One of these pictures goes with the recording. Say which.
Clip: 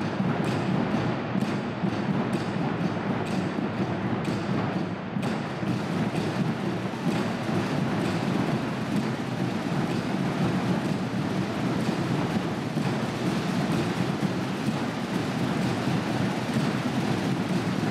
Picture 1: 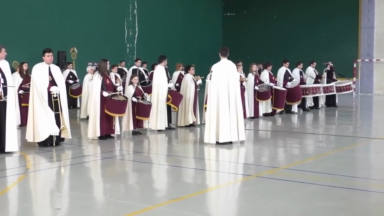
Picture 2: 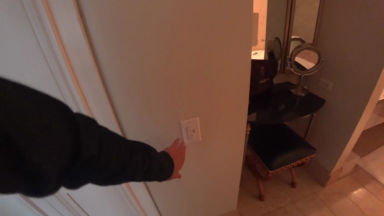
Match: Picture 1